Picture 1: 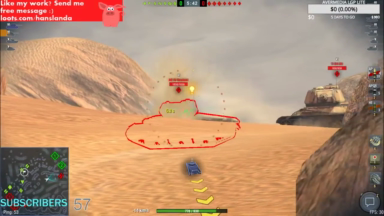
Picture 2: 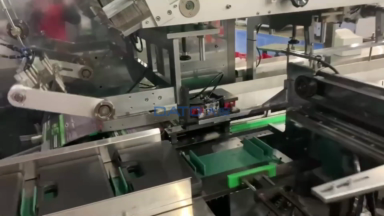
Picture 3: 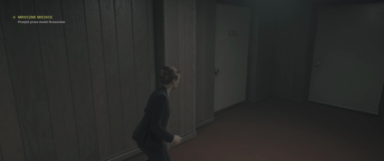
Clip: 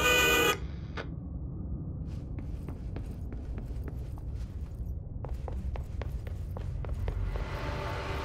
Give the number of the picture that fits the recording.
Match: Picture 3